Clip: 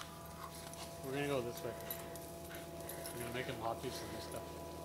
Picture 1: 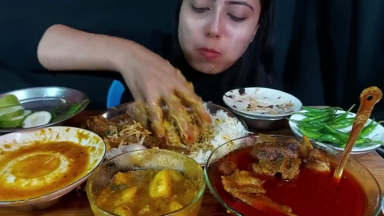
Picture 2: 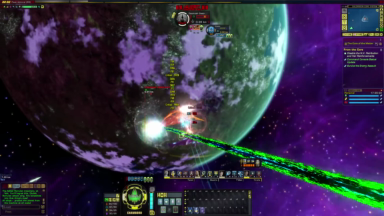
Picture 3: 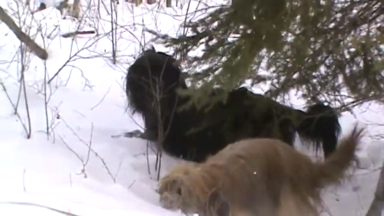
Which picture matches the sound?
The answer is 3